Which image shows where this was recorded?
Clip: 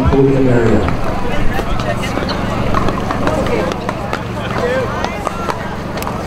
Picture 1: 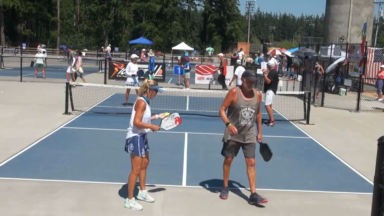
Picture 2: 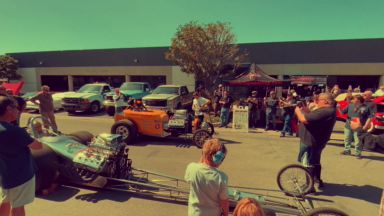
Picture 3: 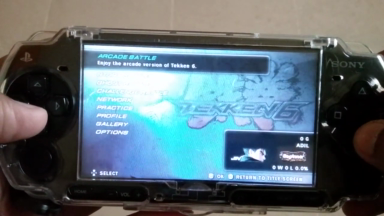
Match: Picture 1